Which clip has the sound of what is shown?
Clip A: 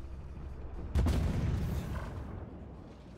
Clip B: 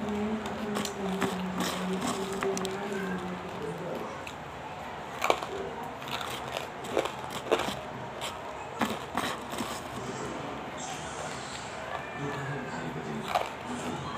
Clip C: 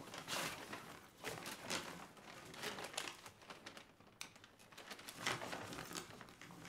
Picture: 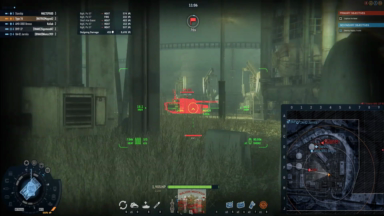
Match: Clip A